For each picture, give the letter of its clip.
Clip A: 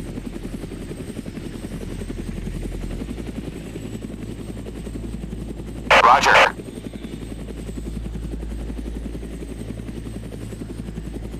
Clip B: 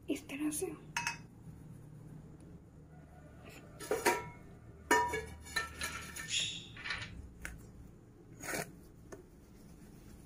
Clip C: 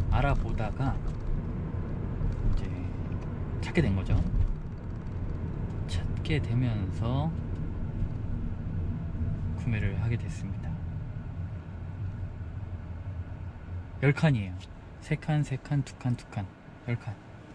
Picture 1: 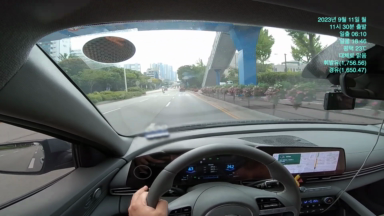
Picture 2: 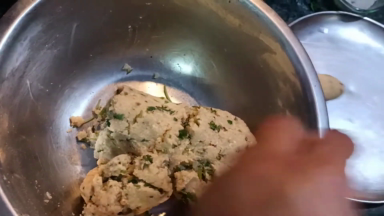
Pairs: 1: C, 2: B